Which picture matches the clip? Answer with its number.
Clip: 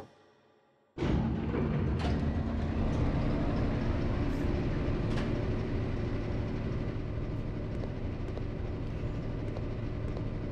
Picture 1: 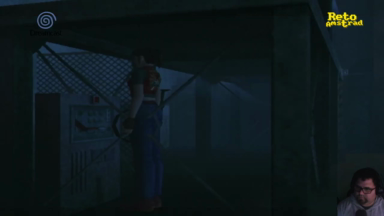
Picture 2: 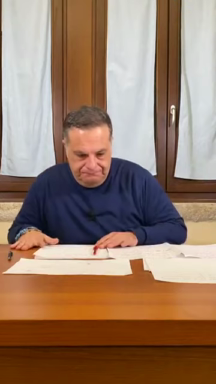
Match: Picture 1